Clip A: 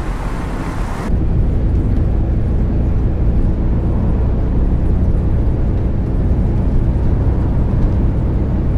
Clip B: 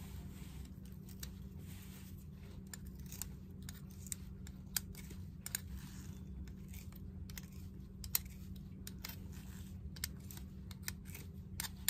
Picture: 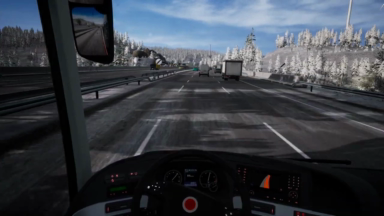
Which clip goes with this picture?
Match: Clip A